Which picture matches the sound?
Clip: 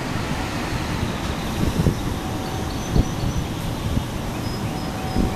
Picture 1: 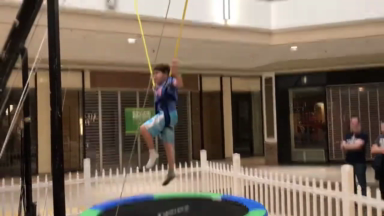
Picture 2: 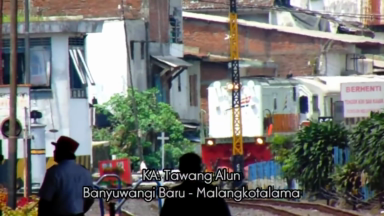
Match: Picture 2